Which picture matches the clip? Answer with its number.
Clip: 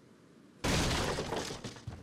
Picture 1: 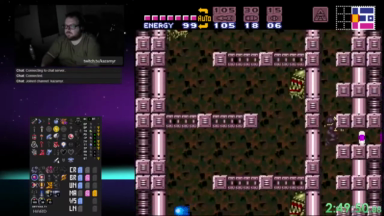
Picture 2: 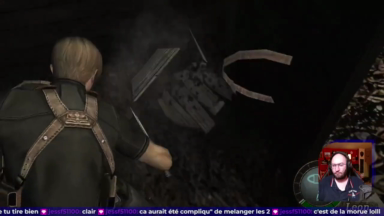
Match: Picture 2